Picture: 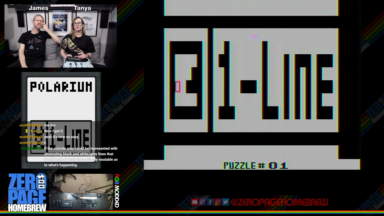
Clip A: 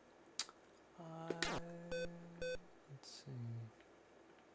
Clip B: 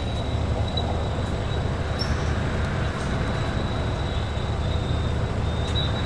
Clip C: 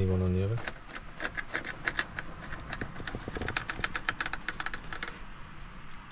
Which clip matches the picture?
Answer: A